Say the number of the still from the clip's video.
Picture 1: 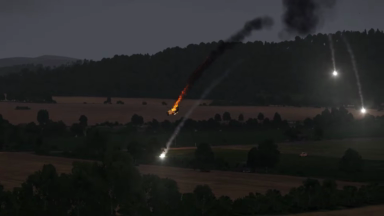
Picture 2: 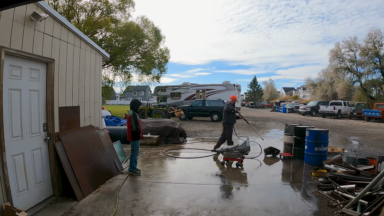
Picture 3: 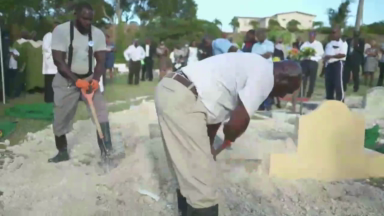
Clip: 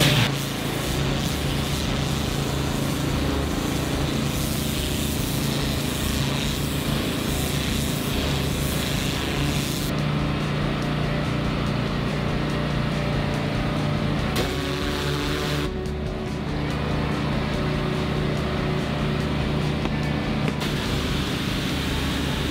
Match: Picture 2